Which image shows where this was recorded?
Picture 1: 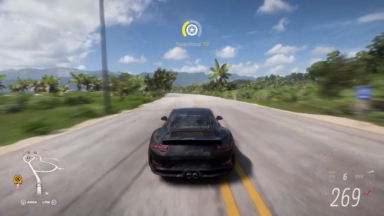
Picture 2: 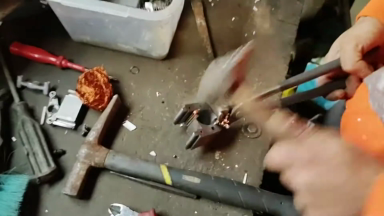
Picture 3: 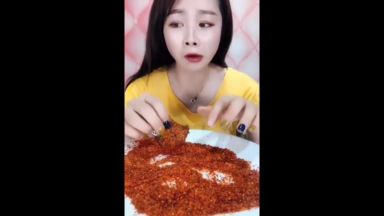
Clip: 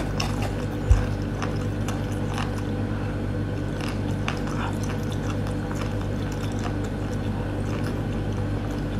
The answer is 3